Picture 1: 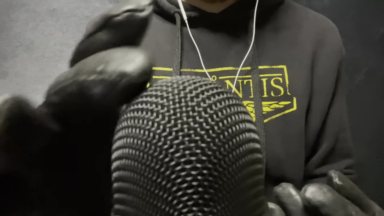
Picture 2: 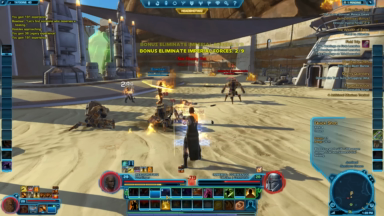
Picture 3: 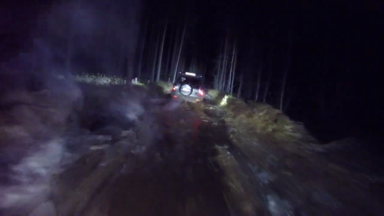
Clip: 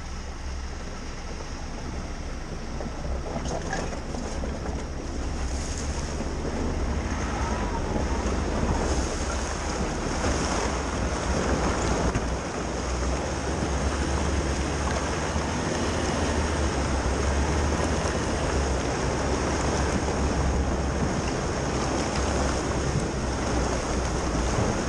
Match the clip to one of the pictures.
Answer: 3